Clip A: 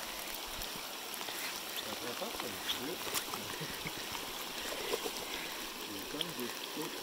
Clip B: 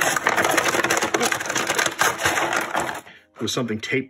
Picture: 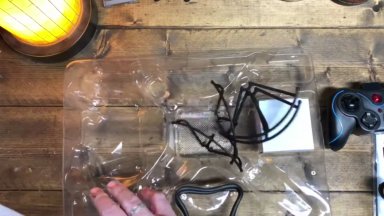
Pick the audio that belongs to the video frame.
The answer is B